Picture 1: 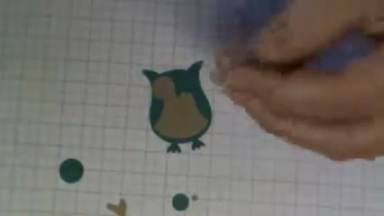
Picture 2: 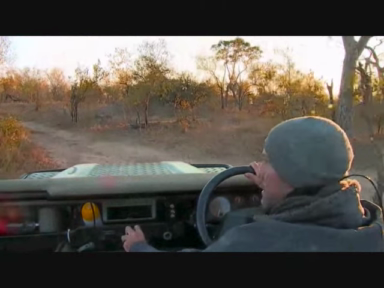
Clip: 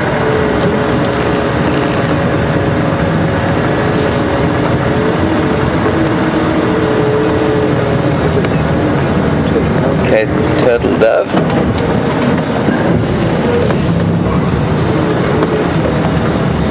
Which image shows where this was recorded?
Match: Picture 2